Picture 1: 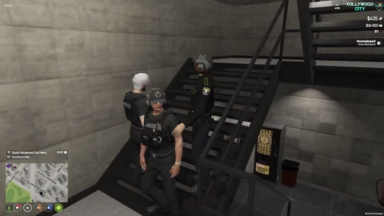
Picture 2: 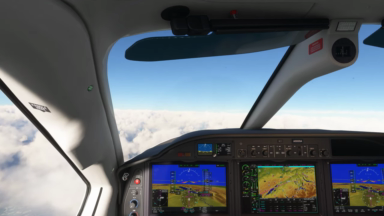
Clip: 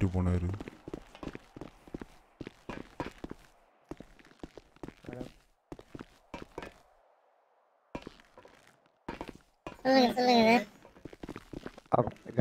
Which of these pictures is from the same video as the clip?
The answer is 1